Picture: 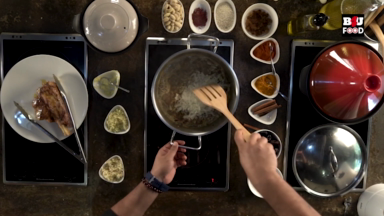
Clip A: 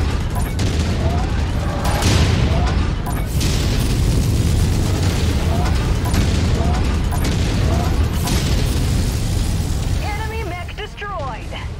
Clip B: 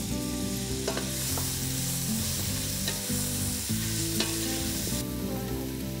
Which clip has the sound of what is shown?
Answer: B